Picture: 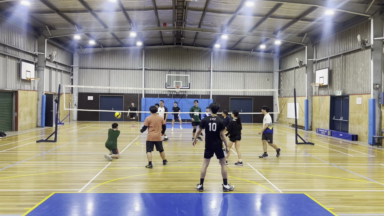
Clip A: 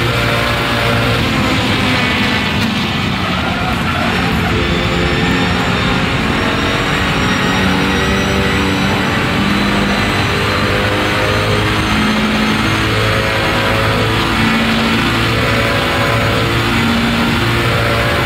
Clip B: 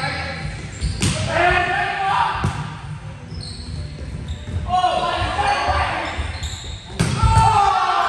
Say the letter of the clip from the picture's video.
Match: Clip B